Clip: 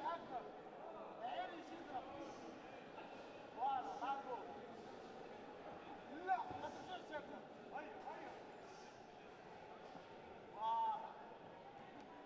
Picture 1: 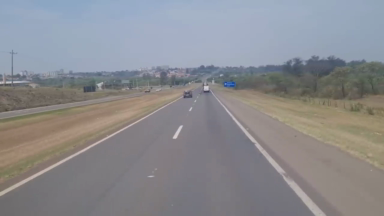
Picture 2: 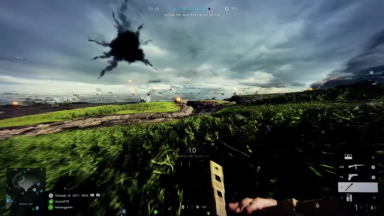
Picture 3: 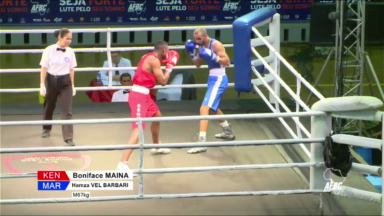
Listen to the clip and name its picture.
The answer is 3